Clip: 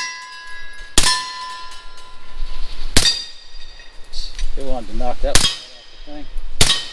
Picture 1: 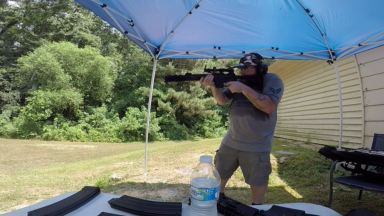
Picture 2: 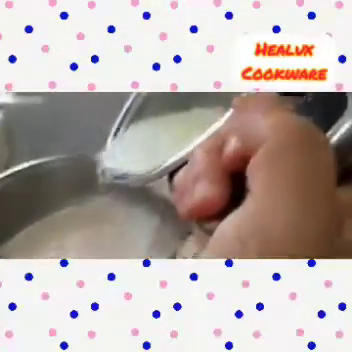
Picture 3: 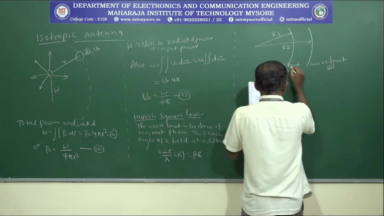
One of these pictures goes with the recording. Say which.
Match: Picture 1